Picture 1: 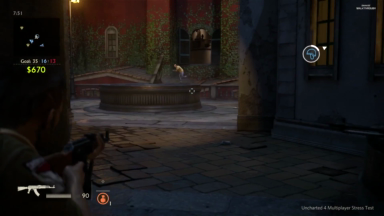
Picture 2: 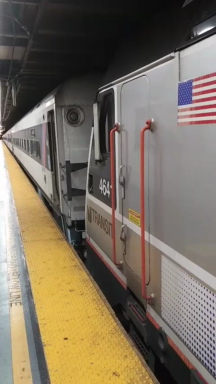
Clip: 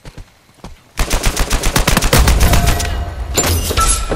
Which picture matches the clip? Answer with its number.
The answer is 1